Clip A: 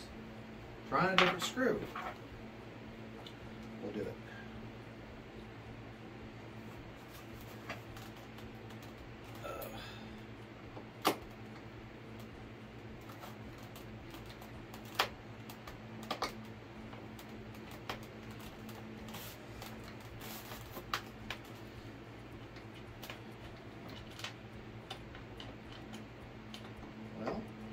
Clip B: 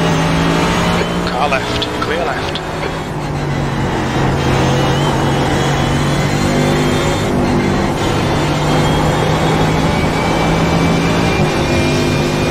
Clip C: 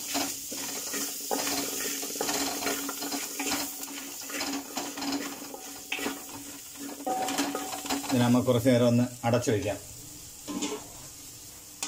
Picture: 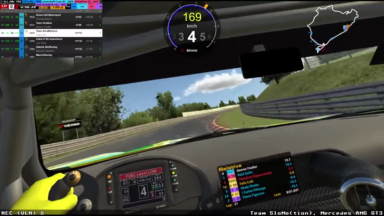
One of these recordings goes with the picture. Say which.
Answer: B